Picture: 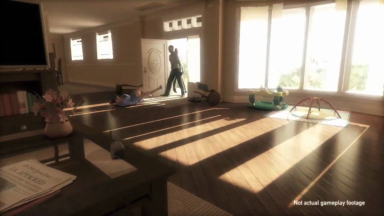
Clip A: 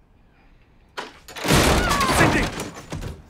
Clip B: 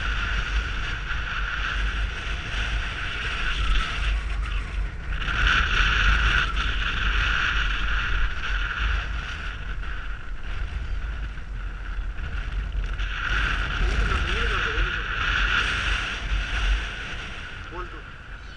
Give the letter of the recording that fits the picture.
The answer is A